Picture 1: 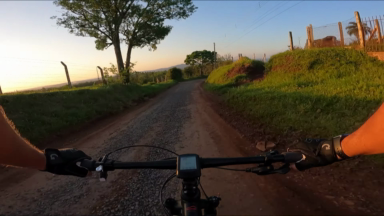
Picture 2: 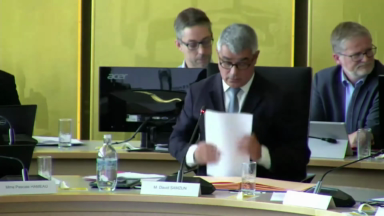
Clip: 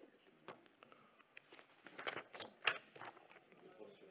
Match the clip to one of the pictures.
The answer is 2